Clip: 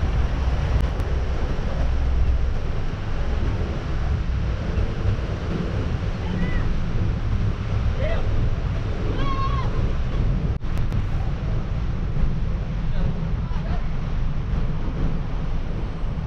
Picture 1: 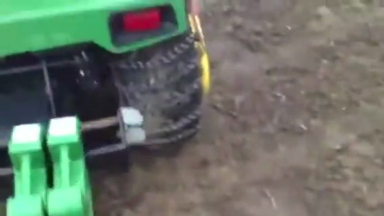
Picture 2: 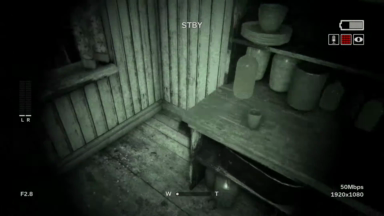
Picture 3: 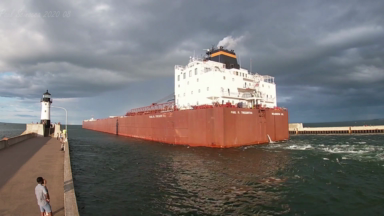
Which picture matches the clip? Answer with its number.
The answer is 3